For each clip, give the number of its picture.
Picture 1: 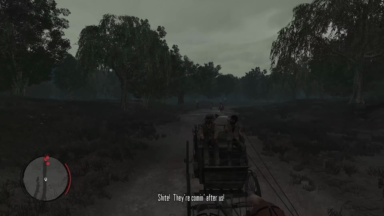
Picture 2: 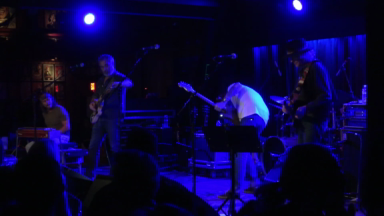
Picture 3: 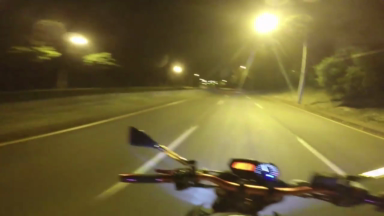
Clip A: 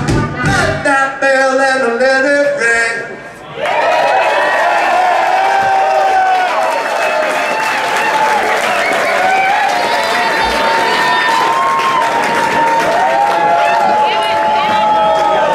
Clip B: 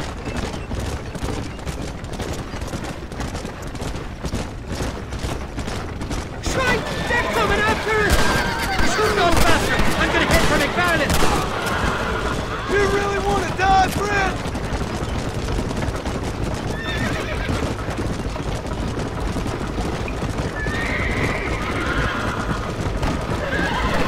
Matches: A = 2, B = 1